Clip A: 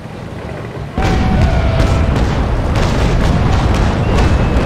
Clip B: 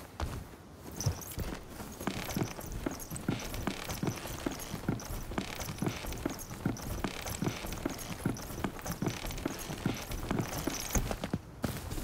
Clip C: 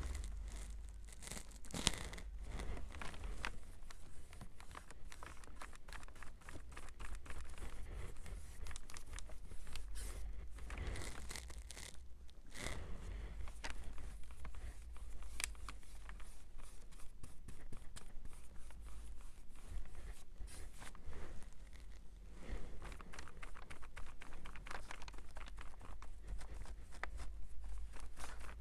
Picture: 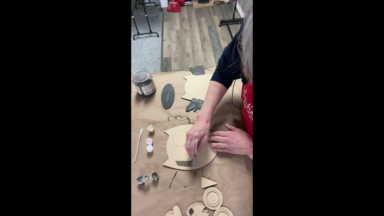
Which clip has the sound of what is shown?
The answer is C